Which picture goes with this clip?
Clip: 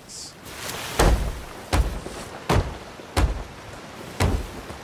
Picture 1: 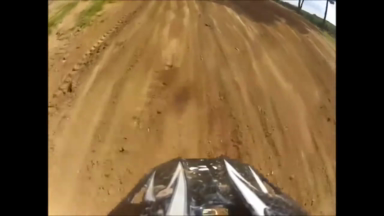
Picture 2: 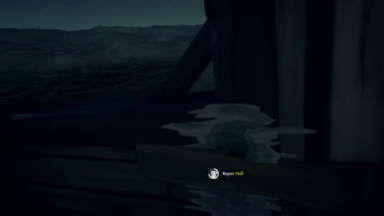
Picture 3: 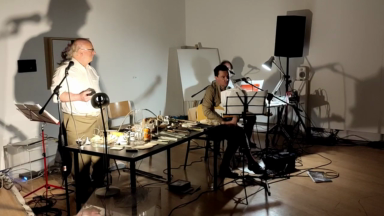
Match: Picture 2